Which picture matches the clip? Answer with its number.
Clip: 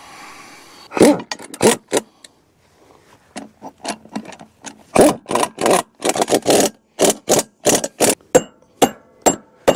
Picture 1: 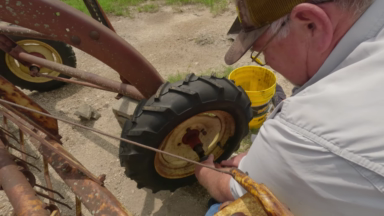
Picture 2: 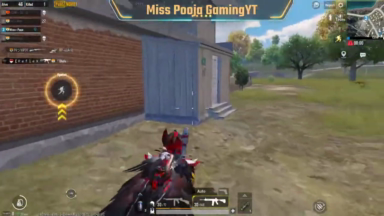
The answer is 1